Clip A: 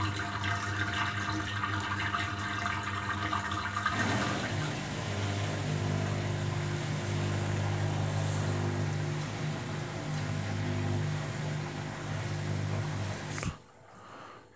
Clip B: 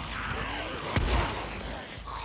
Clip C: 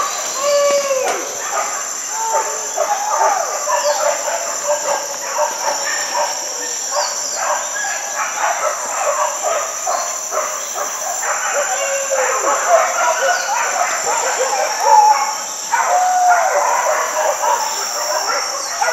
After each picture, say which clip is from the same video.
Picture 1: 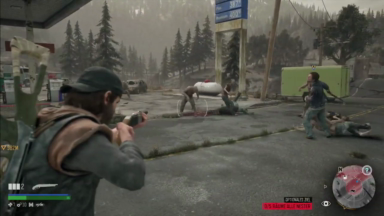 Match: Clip B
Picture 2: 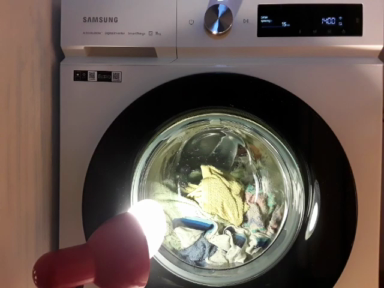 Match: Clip A